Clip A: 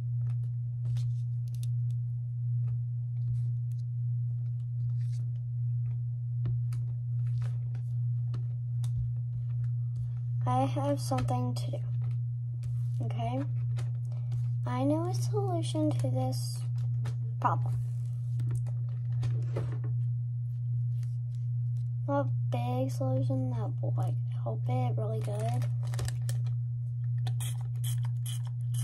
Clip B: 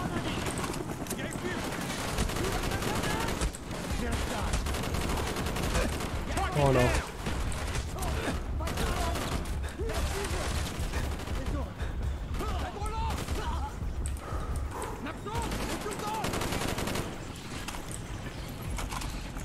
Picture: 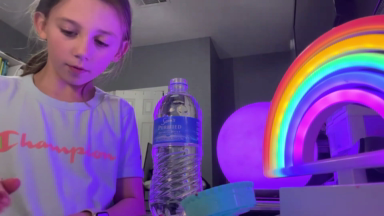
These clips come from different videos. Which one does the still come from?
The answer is A